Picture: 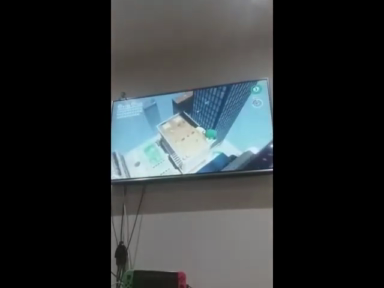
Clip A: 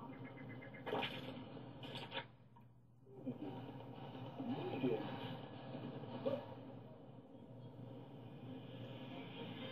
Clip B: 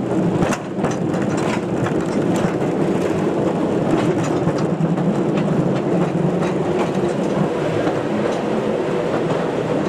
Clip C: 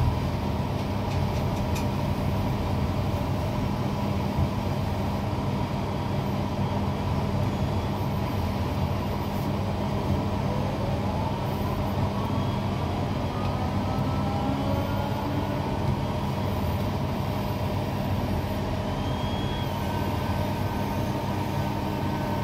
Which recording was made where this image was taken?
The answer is A